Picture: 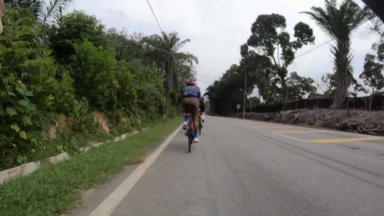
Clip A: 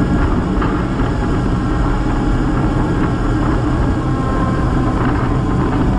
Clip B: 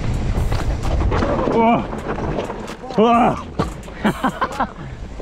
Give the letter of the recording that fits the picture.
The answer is A